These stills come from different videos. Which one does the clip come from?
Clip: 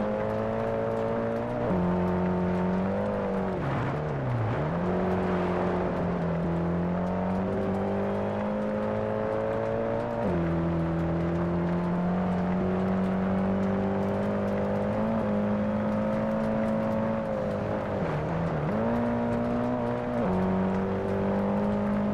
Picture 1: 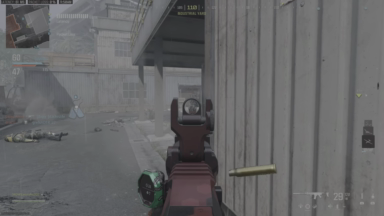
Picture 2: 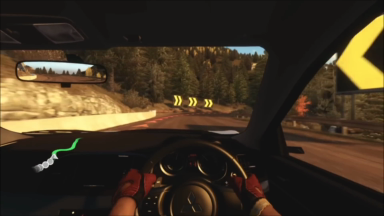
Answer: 2